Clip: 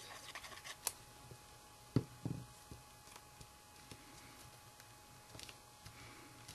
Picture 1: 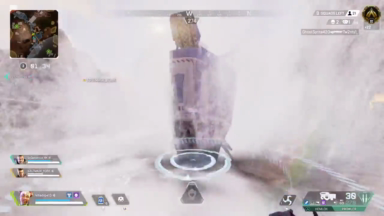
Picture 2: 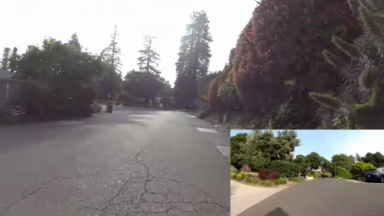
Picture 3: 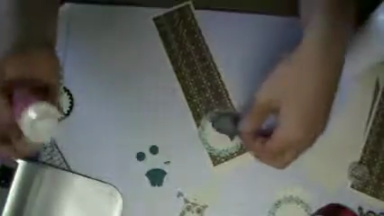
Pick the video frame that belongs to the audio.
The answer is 3